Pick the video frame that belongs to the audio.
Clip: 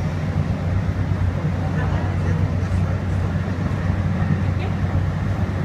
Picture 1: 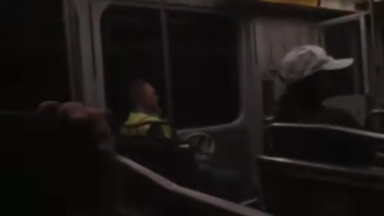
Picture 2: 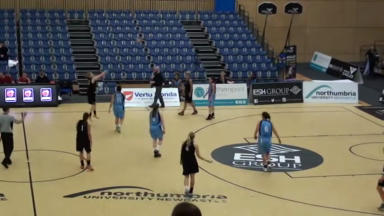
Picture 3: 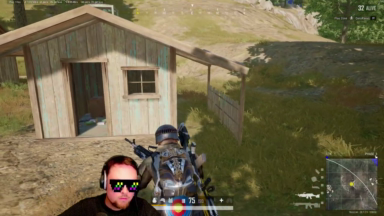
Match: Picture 1